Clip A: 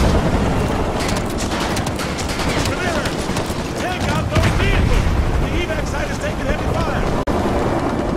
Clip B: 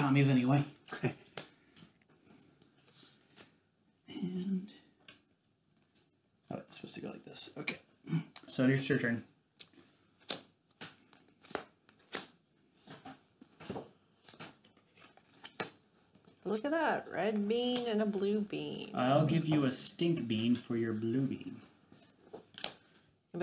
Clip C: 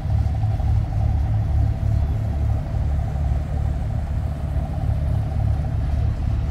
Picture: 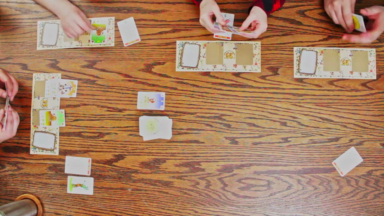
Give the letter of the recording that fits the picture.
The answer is B